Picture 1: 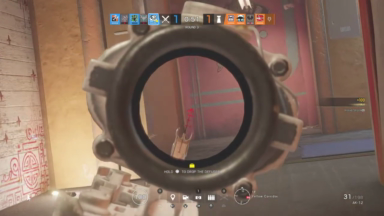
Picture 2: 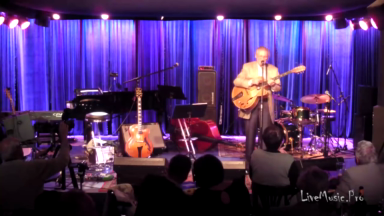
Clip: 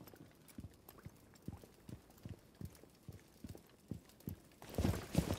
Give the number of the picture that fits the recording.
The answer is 1